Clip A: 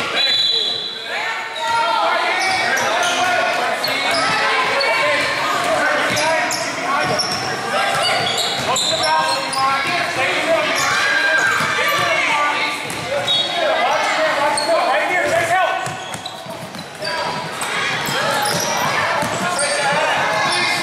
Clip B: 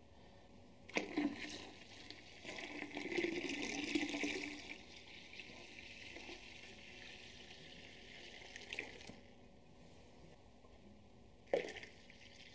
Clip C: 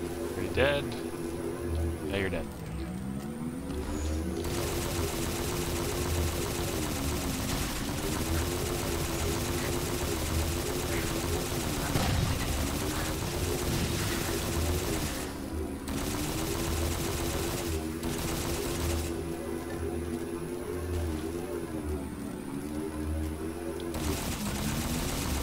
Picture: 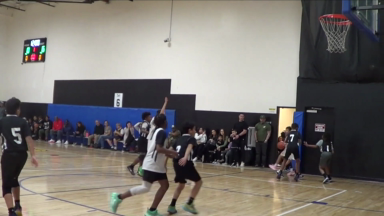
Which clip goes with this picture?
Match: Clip A